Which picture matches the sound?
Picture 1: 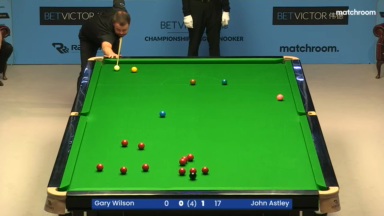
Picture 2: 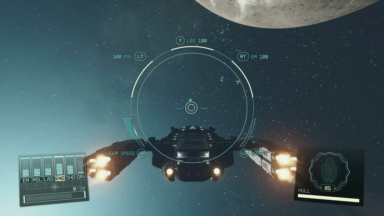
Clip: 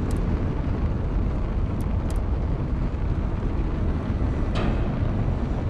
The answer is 2